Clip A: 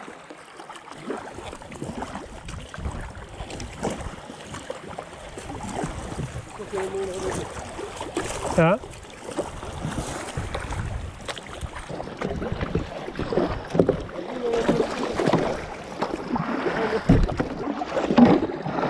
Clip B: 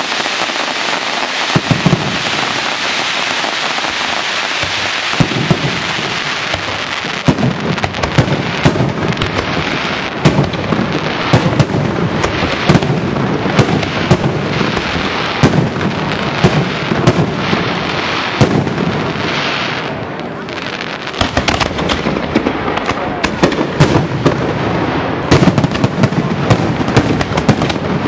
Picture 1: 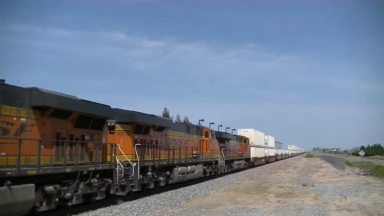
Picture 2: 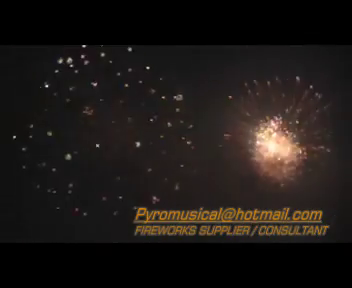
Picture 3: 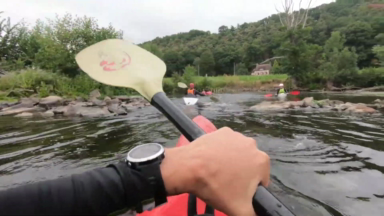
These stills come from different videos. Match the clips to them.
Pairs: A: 3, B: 2